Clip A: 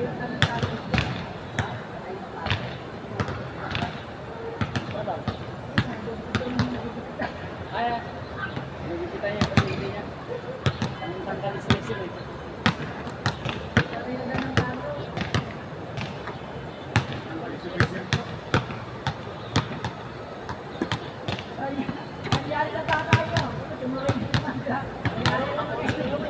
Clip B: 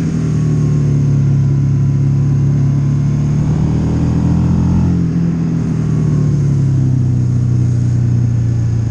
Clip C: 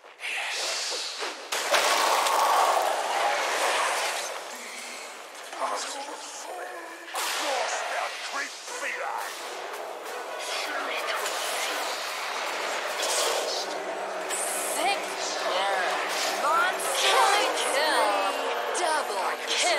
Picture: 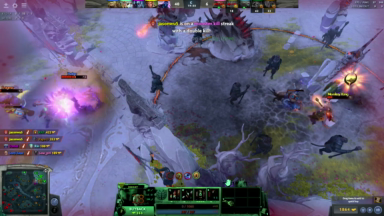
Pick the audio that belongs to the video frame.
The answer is C